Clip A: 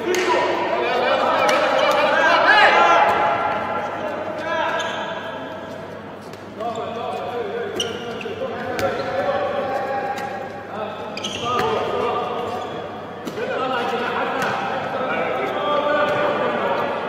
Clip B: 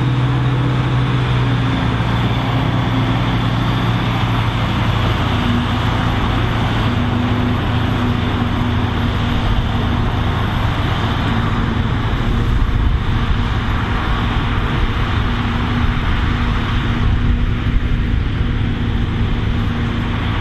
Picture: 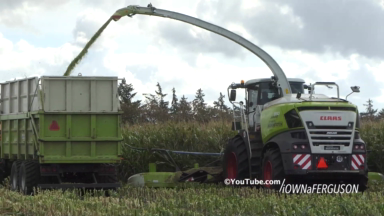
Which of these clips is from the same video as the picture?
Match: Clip B